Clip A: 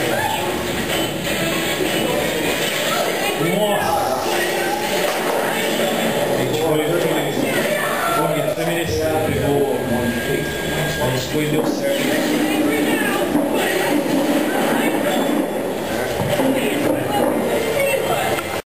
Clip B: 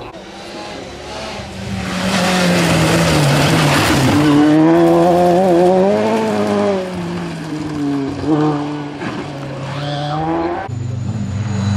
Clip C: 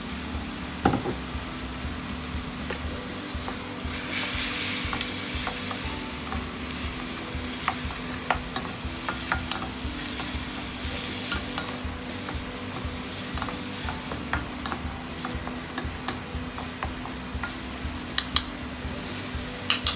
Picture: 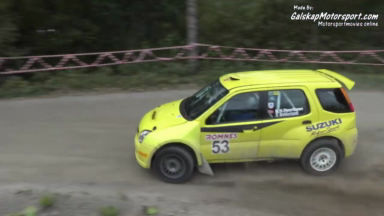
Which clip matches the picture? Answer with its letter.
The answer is B